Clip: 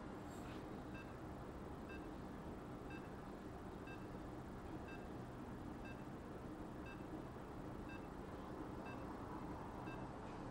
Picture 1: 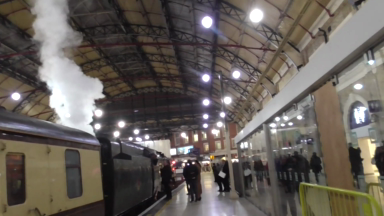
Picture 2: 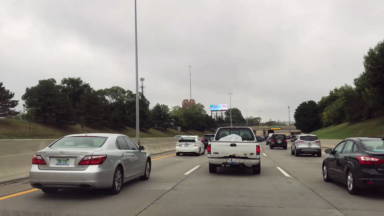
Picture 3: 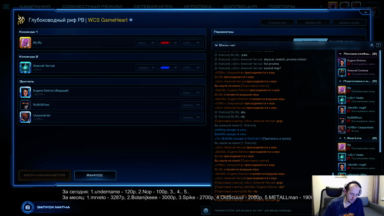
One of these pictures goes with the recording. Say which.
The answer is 3